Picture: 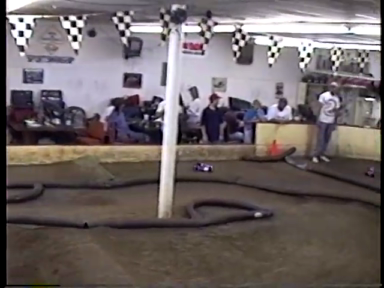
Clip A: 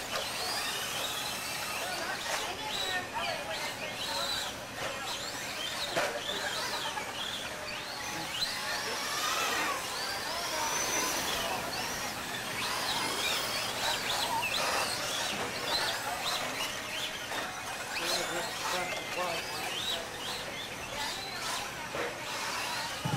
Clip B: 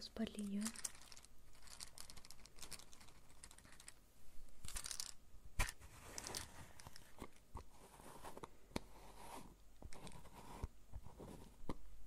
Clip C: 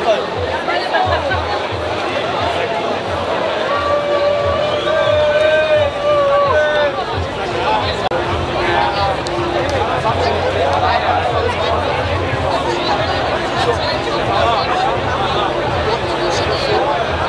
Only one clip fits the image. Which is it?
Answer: A